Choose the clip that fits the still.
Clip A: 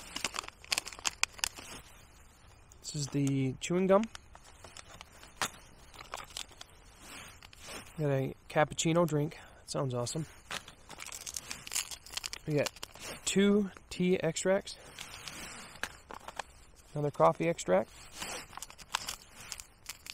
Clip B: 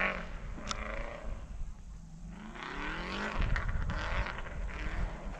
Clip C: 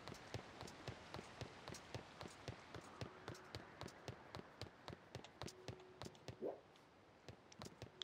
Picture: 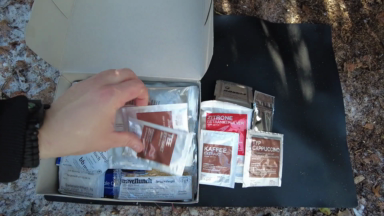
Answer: A